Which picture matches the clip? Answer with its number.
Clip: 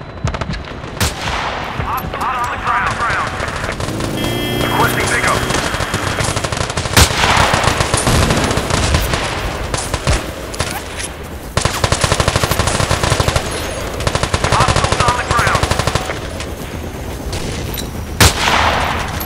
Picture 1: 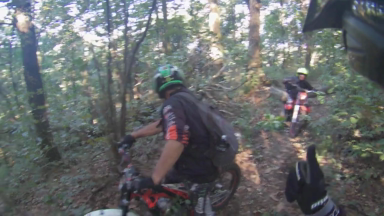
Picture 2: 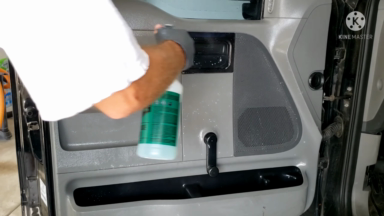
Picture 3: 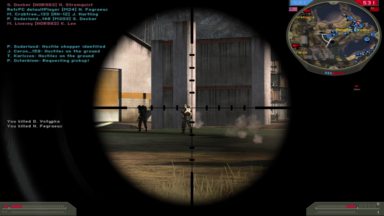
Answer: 3